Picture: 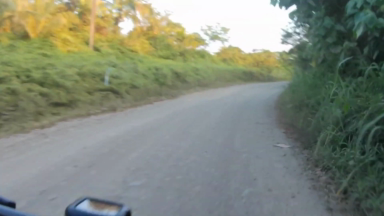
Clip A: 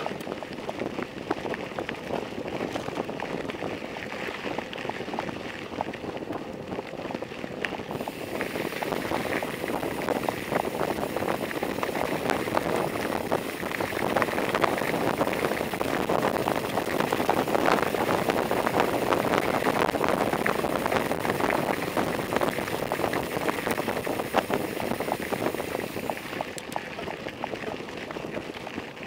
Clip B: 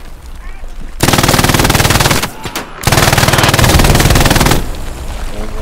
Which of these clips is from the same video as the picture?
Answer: A